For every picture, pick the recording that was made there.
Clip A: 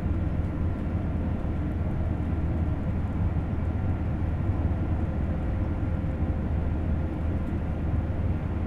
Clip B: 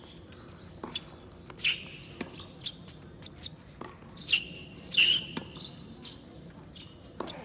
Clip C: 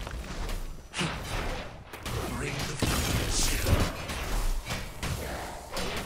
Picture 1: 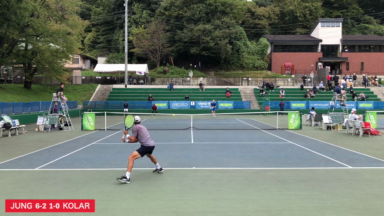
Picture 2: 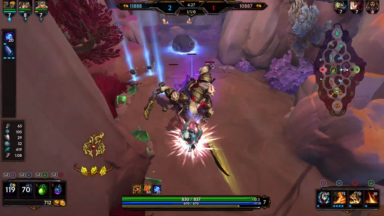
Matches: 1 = B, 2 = C